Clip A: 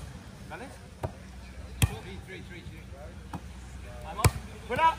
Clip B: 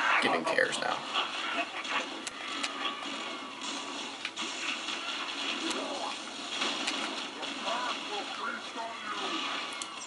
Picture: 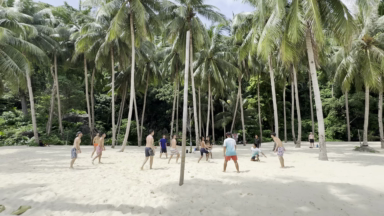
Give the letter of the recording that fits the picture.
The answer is A